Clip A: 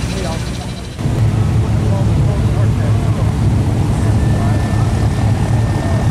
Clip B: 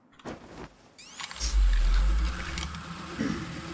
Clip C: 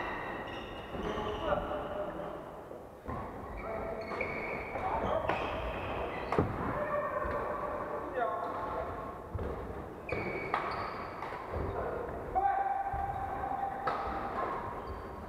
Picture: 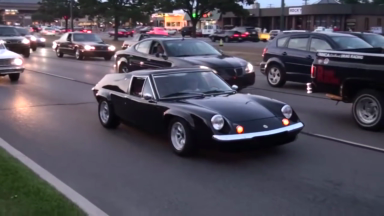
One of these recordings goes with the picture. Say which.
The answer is A